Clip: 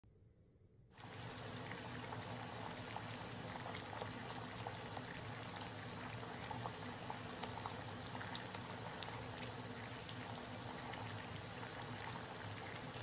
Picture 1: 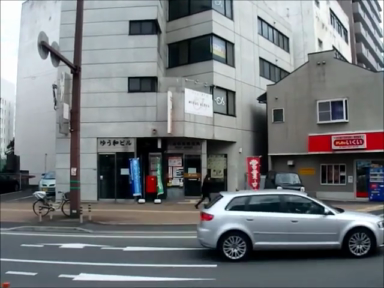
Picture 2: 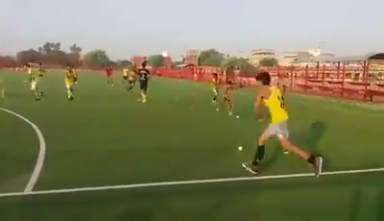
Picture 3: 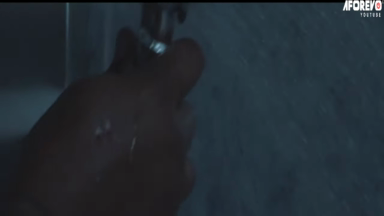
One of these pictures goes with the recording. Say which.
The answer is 3